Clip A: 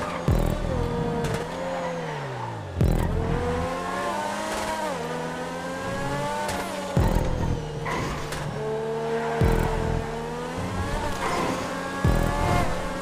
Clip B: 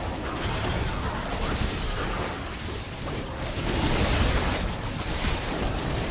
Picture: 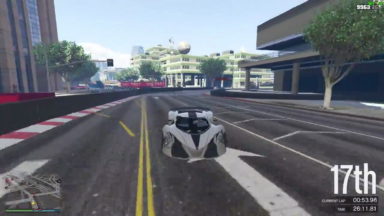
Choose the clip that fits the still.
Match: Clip A